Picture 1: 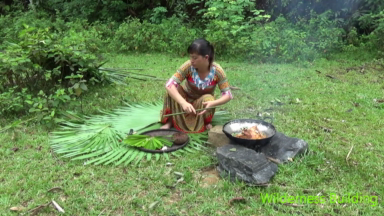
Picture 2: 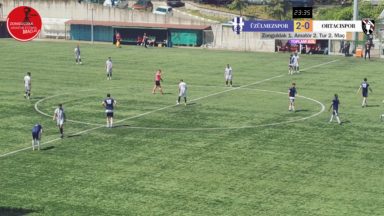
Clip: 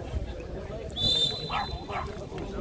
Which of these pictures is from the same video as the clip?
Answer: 2